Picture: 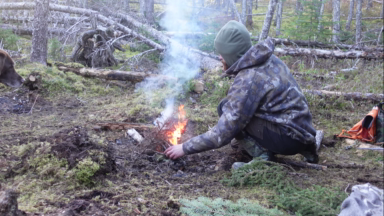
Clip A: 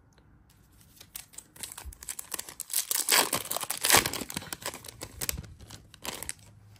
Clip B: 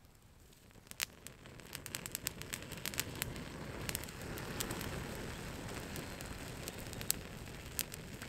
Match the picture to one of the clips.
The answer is B